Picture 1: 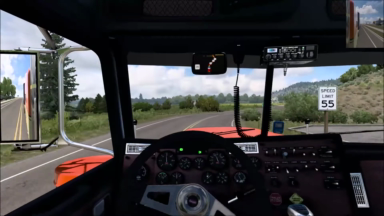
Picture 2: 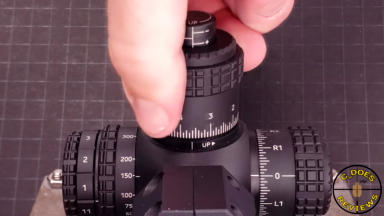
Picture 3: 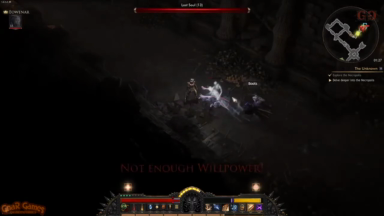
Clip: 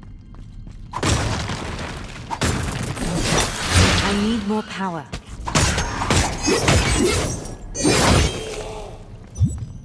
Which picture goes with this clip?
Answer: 3